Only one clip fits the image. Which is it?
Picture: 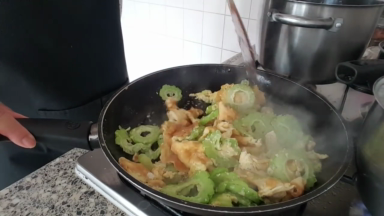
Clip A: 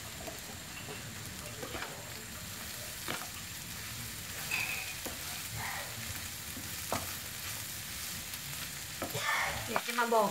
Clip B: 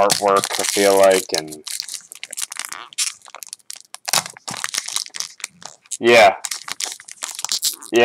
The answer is A